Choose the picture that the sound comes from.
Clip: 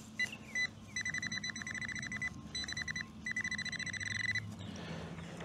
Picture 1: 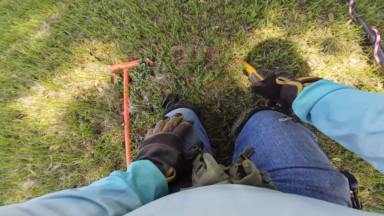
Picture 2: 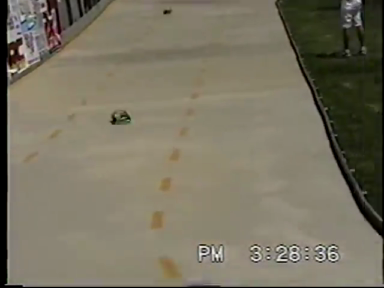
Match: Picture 1